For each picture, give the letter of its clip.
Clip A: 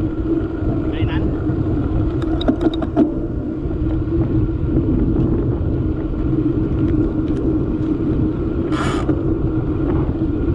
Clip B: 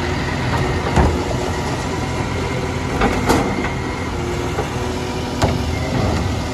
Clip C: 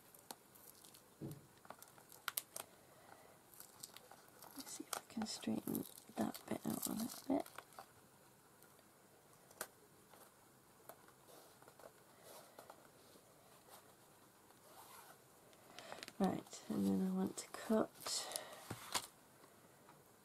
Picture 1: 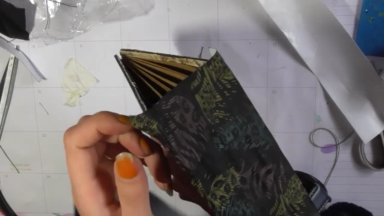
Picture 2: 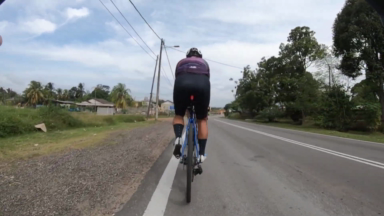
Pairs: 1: C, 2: A